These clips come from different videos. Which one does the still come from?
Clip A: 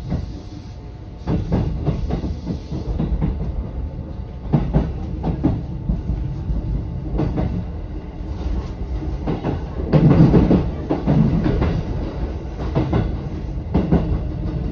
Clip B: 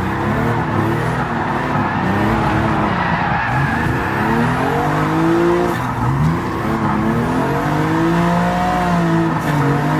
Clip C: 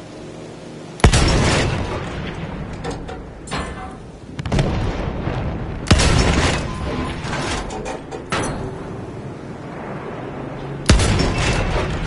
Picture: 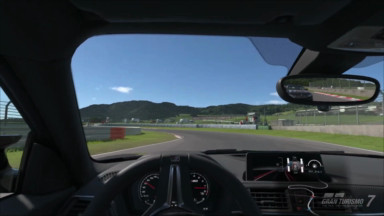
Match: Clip B